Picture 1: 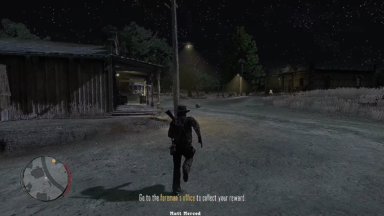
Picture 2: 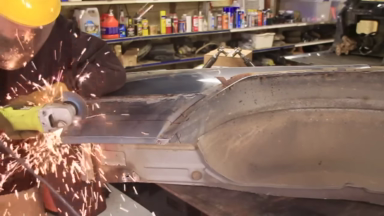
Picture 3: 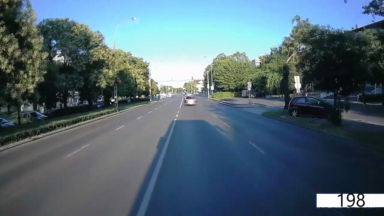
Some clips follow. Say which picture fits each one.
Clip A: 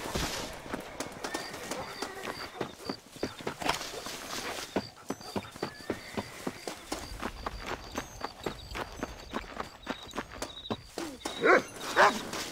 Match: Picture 1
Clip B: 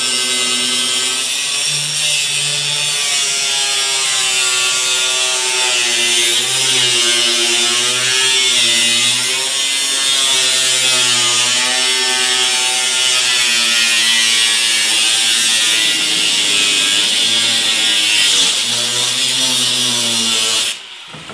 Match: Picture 2